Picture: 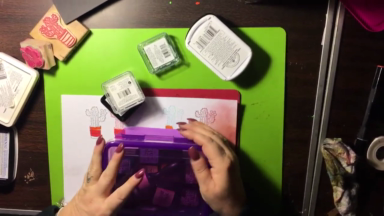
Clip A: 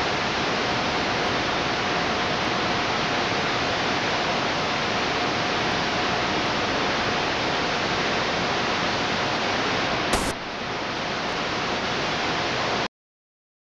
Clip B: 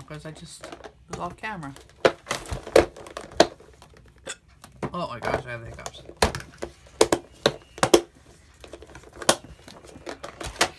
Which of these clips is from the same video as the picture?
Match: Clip B